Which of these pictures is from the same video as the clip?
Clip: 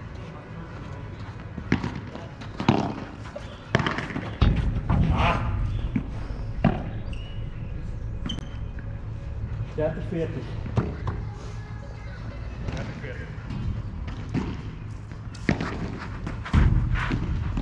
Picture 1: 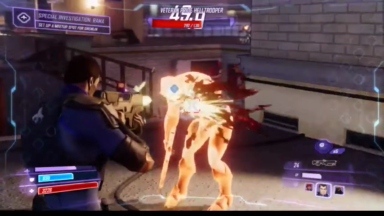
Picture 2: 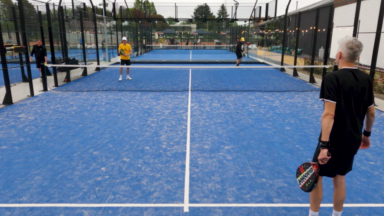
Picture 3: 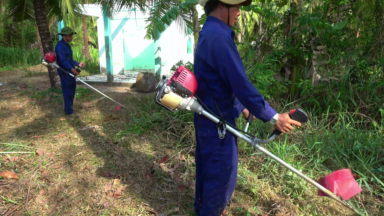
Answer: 2